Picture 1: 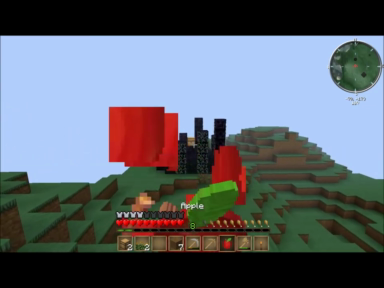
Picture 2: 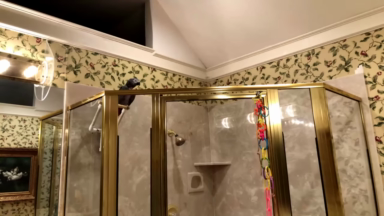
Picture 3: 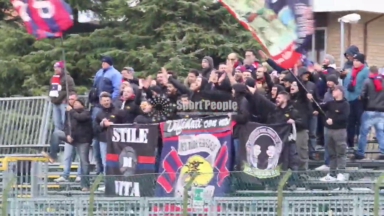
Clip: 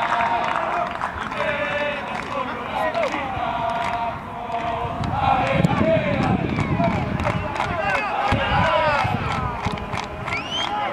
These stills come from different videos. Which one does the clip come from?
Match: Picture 3